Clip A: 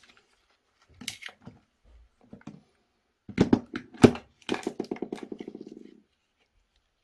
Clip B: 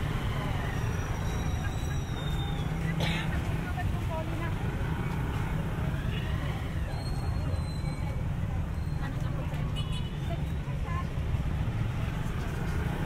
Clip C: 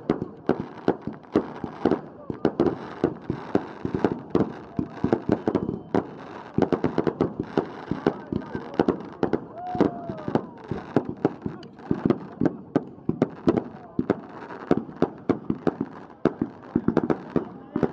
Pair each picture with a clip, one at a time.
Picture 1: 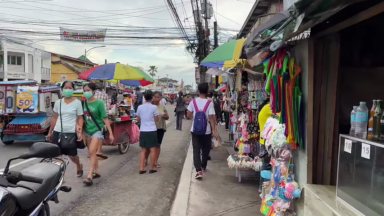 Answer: B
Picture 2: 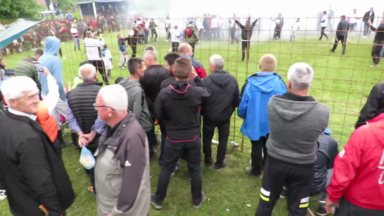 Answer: C